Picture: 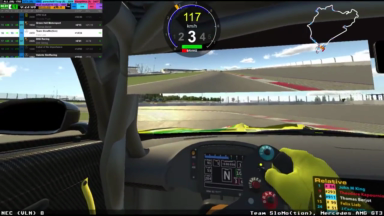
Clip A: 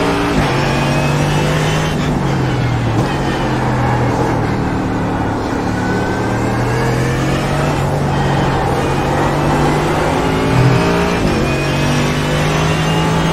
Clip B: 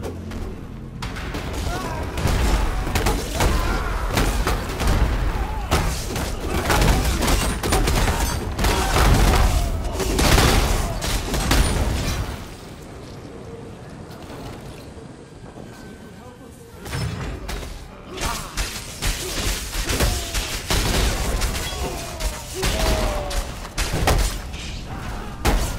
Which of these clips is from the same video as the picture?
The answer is A